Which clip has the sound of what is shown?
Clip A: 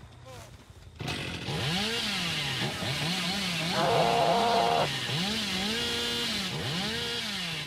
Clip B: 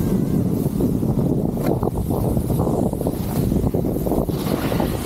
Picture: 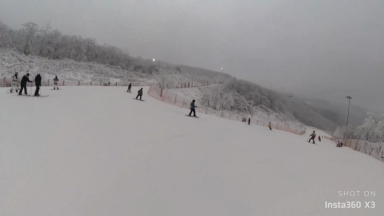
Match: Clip B